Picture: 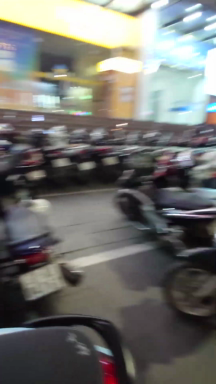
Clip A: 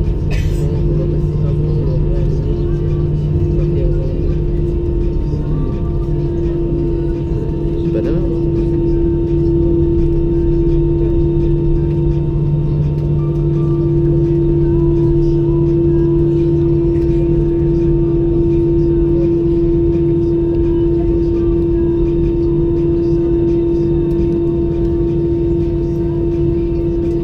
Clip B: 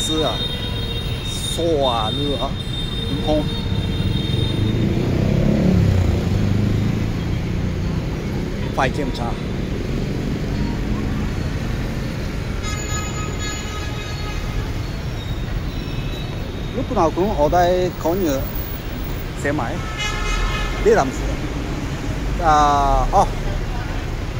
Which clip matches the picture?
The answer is B